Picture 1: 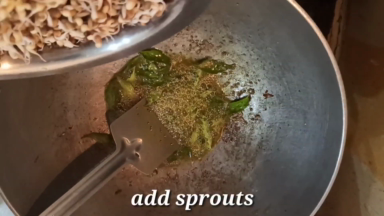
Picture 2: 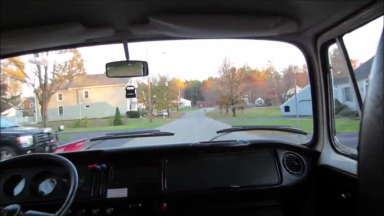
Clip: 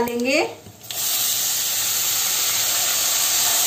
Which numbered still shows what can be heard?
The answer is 1